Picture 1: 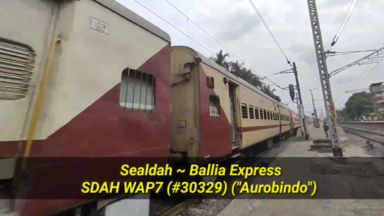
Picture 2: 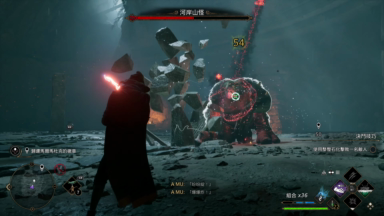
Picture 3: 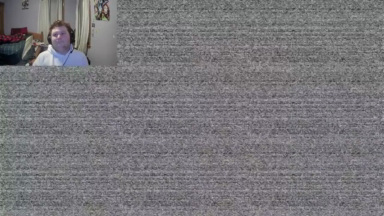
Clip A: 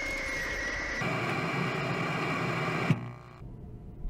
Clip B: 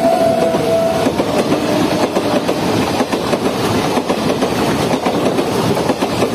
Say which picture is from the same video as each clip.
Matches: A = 3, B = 1